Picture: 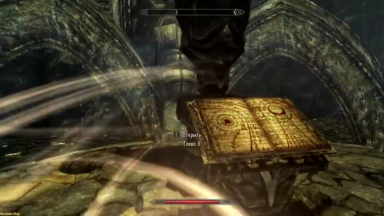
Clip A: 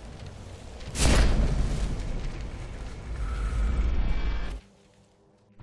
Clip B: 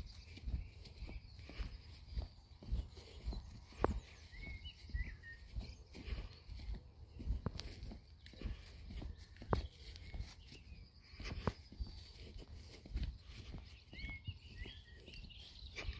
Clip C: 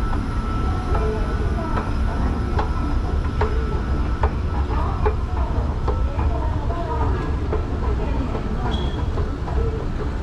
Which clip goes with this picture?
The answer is A